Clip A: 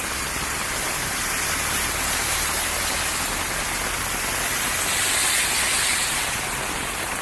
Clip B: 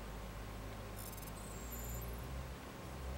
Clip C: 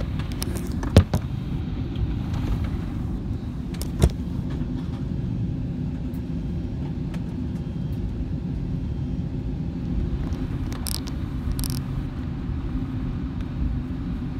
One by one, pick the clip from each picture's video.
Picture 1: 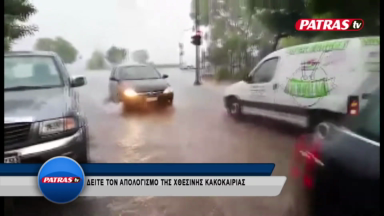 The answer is A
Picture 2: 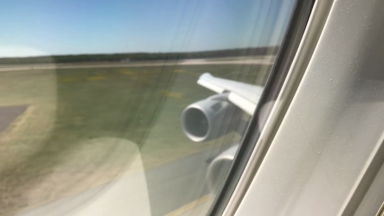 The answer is C